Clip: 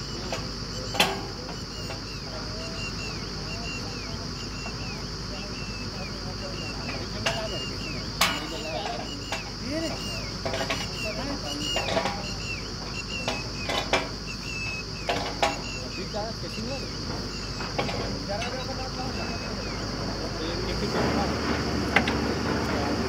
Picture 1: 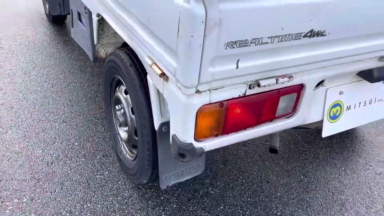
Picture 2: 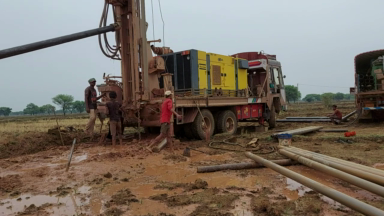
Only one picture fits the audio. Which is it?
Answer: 2